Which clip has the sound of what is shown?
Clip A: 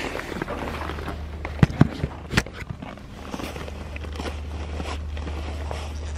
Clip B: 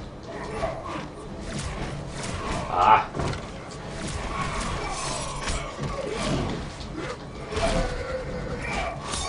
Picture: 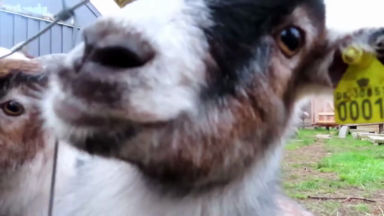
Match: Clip A